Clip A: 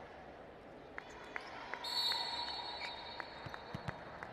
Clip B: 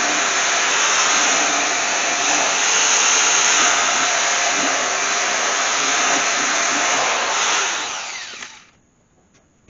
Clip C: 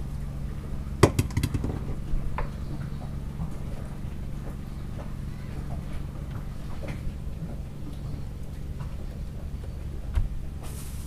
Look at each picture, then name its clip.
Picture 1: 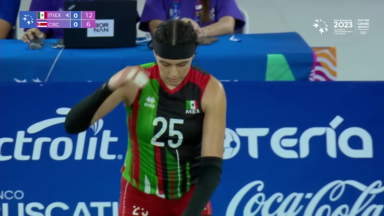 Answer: A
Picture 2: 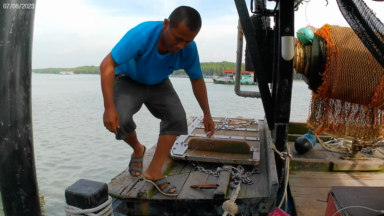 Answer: C